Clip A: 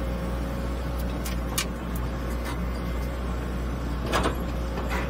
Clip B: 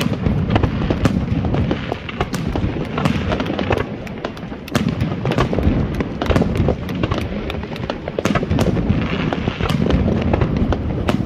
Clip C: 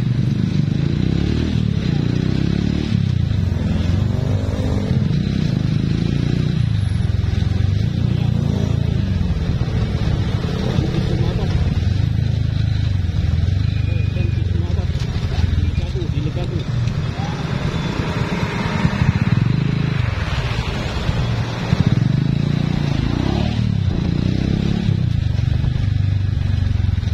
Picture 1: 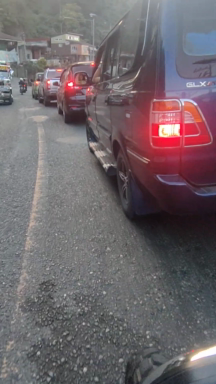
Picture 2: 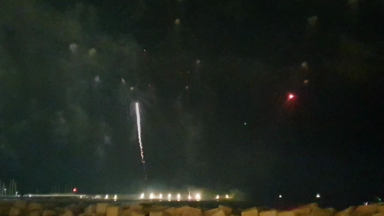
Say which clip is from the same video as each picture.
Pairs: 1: C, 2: B